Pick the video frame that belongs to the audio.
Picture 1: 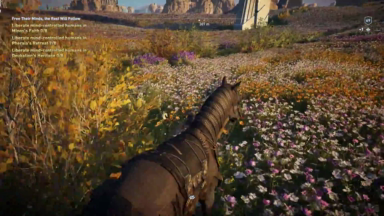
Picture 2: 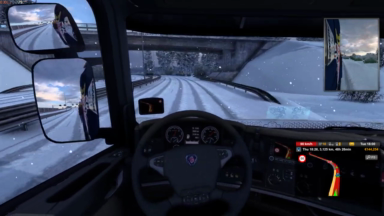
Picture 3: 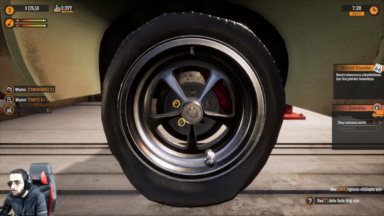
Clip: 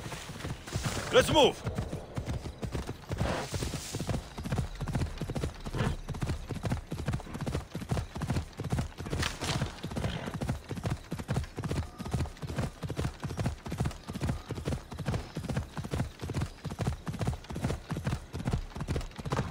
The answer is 1